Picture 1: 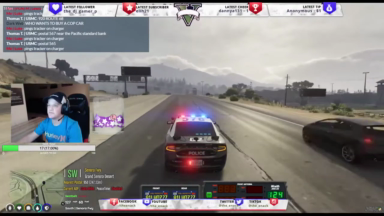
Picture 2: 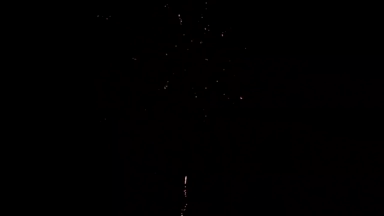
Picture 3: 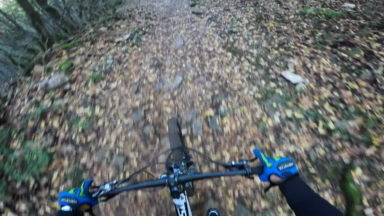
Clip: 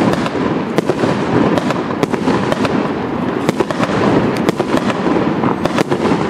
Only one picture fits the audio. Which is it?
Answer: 2